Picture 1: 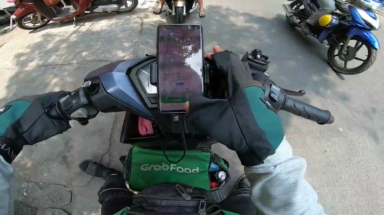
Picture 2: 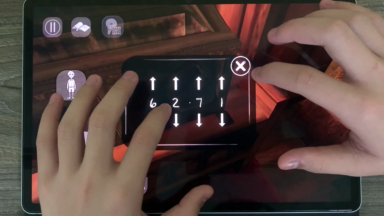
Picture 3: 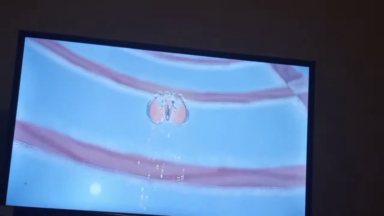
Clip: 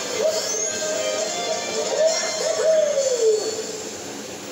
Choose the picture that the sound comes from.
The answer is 3